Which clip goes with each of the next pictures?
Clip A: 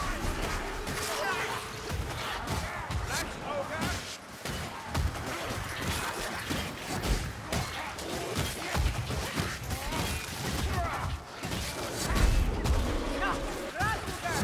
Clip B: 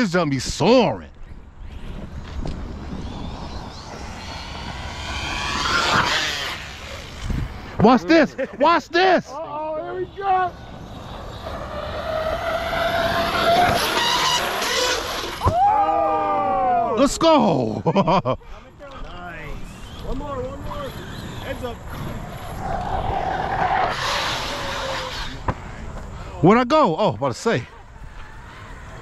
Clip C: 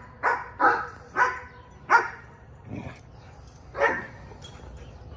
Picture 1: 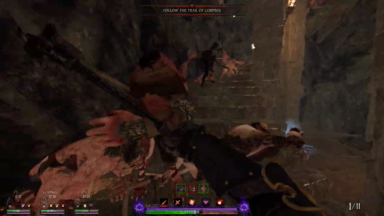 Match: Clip A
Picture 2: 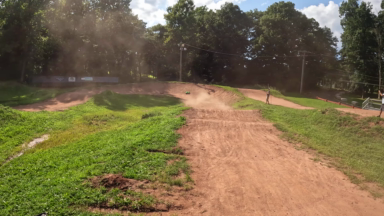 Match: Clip B